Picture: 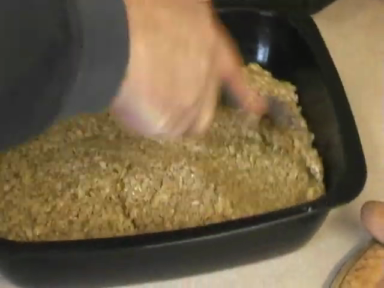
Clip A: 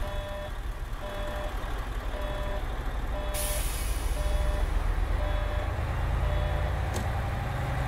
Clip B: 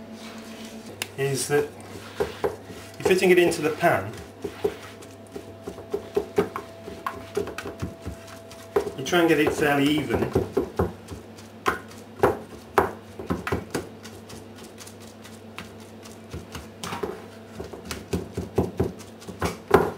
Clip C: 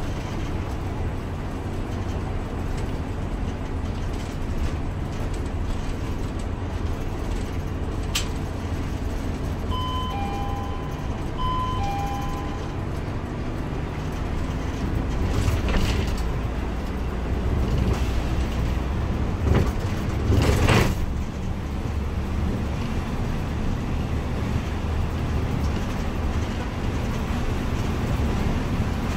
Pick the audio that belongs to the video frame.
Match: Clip B